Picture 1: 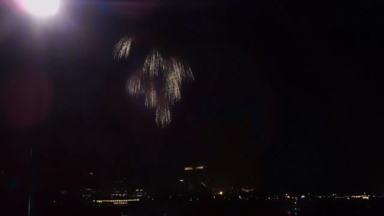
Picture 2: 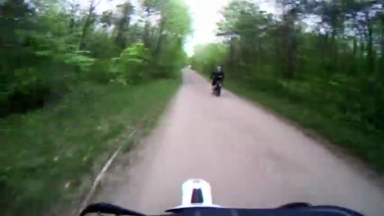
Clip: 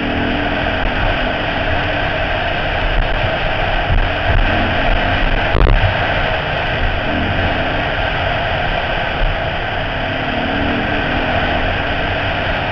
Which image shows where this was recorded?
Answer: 2